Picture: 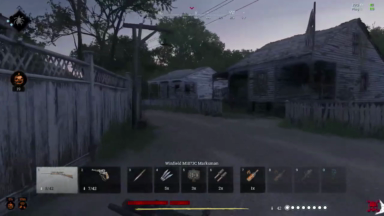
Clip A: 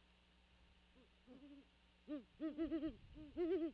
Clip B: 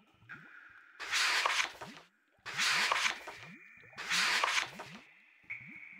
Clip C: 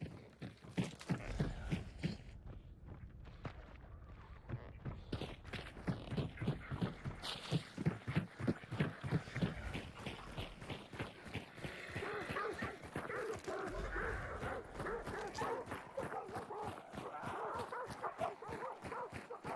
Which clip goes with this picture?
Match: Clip C